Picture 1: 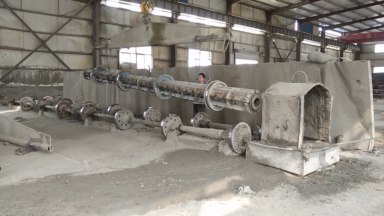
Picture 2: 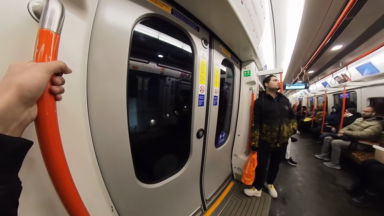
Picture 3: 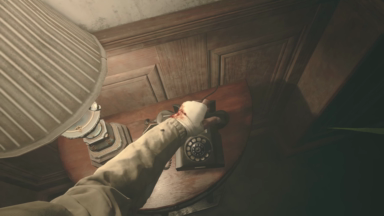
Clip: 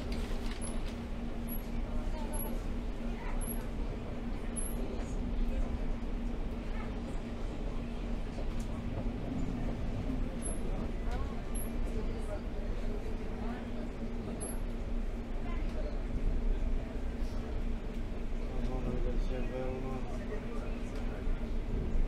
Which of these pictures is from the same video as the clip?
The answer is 2